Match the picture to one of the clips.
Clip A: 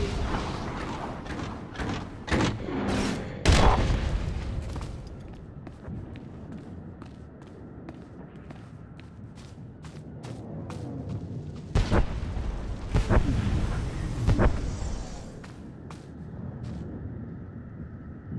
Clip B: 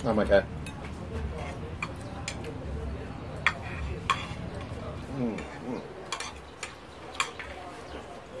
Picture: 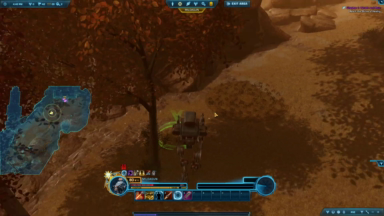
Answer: A